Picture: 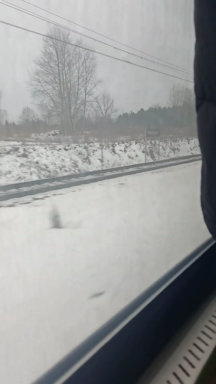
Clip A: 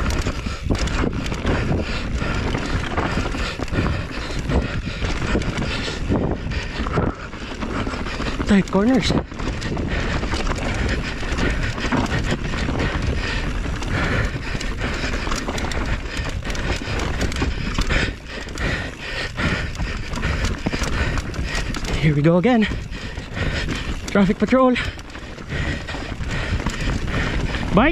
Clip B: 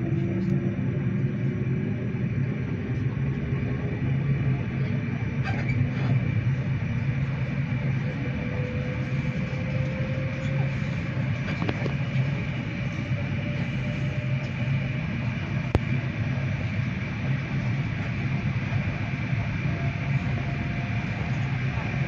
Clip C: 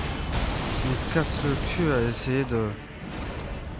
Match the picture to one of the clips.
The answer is B